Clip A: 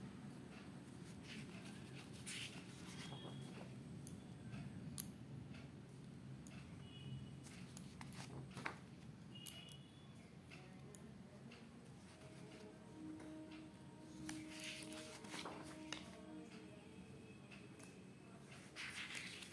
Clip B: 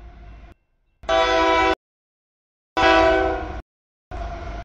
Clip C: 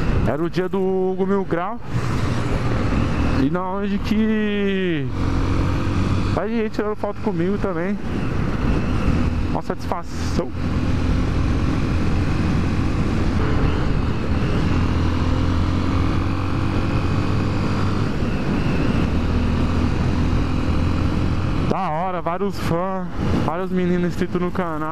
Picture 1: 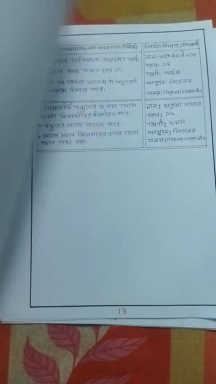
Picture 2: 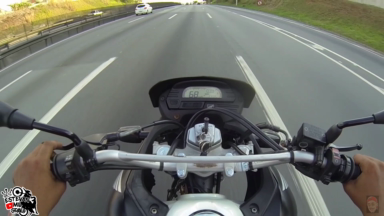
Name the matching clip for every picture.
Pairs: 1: A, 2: C